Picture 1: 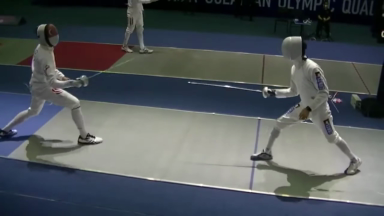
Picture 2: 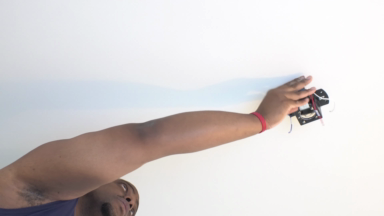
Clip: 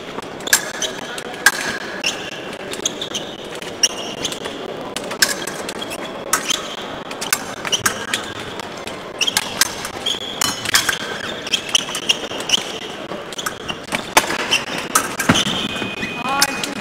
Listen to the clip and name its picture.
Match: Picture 1